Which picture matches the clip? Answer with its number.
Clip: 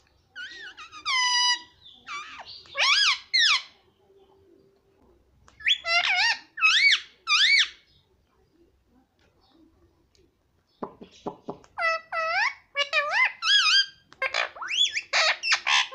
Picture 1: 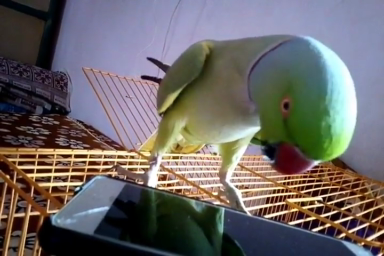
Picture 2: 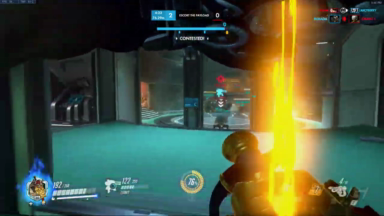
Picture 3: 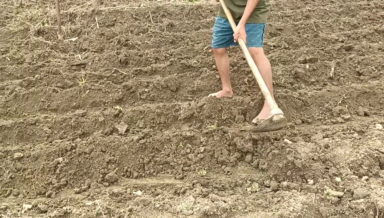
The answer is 1